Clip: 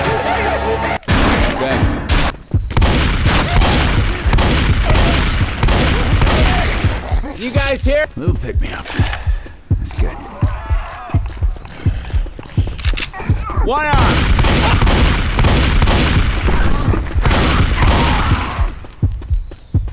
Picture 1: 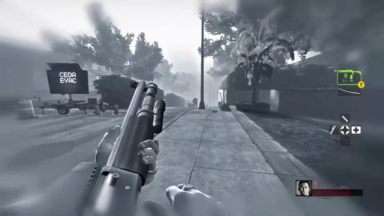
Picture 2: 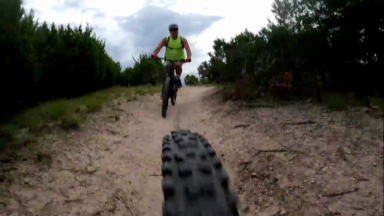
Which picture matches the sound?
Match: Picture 1